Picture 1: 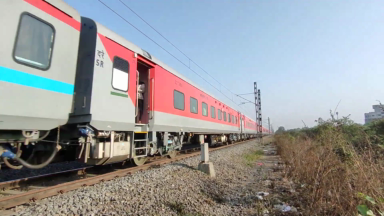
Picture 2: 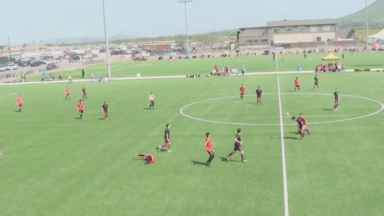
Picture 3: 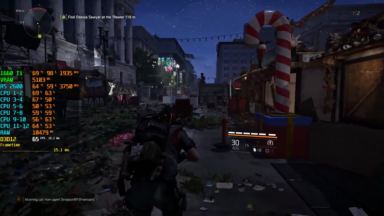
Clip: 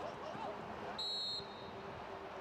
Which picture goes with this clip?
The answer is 2